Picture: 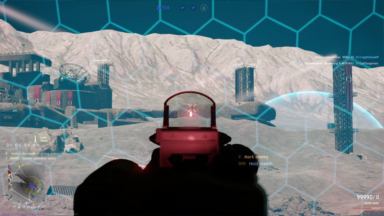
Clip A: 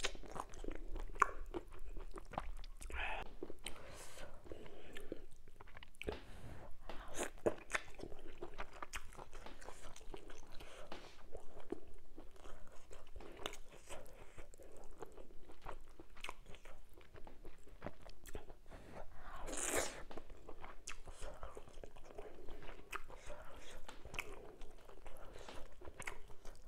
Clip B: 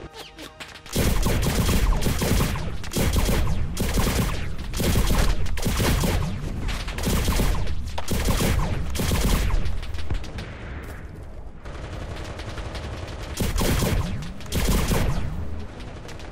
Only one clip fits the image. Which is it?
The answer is B